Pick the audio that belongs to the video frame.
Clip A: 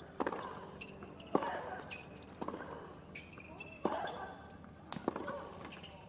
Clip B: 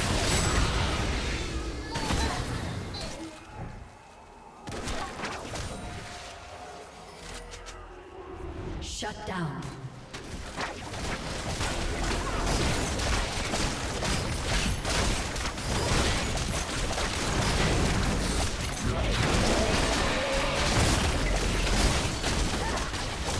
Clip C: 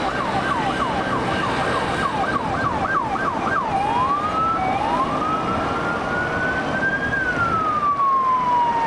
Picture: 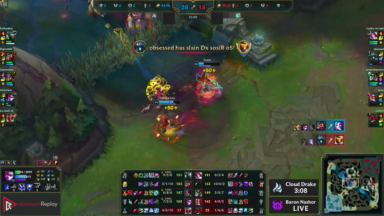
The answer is B